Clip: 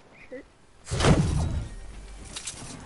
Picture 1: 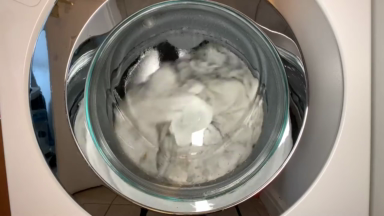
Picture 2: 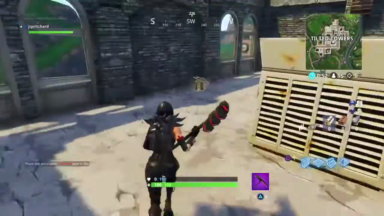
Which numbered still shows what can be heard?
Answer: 2